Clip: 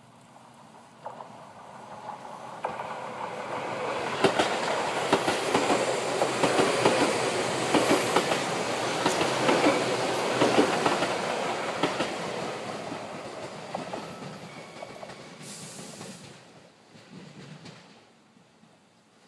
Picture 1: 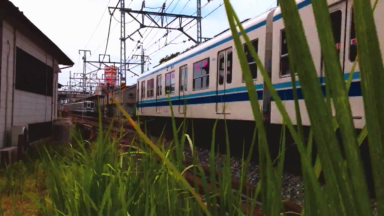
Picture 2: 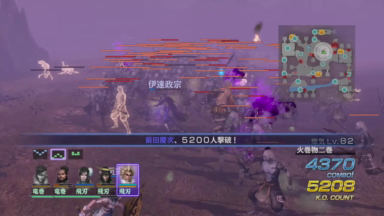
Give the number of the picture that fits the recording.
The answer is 1